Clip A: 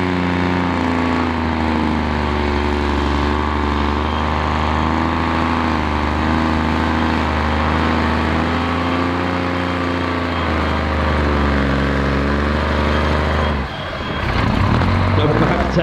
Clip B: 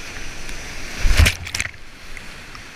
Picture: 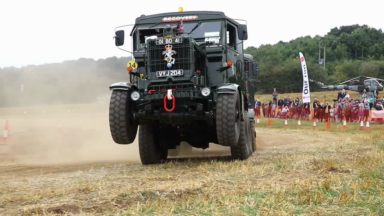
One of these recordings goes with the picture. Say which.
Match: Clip A